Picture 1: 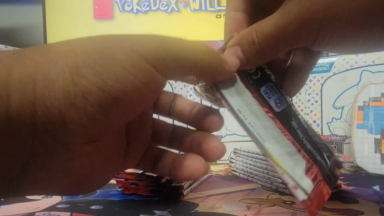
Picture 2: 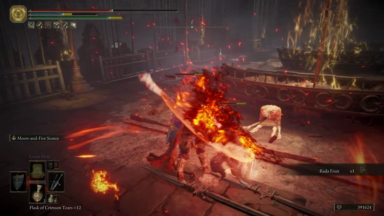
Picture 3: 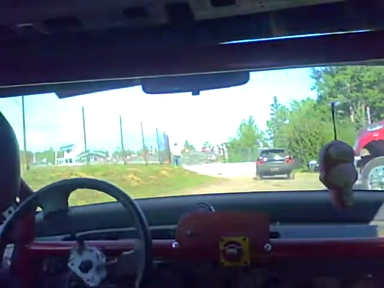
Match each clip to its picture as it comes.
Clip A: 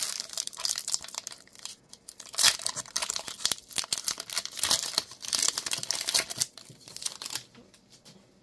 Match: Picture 1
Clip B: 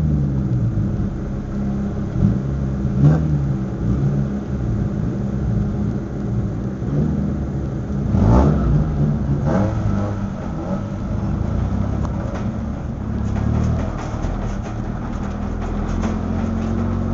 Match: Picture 3